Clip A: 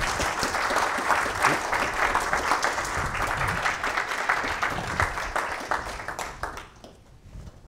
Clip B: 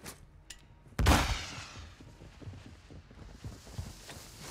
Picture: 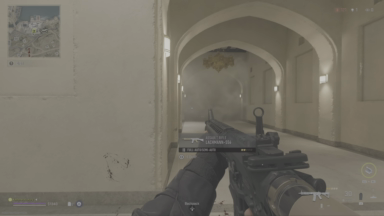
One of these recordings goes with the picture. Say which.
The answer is B